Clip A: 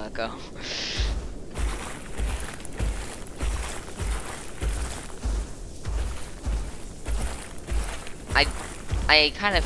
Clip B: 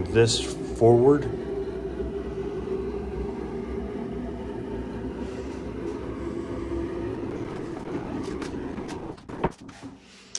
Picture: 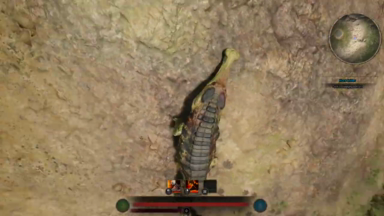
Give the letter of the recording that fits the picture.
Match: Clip A